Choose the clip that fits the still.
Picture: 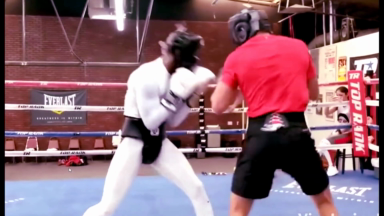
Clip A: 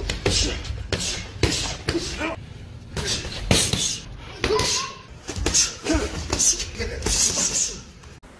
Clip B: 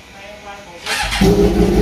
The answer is A